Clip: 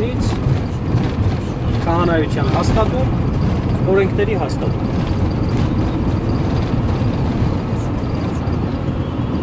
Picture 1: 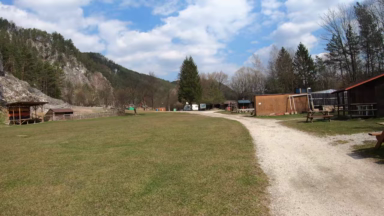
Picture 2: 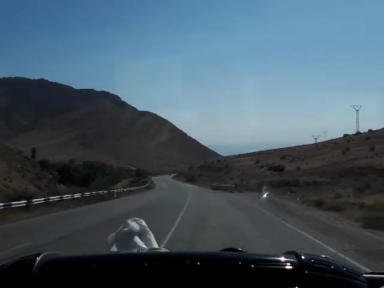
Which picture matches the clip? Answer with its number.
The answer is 2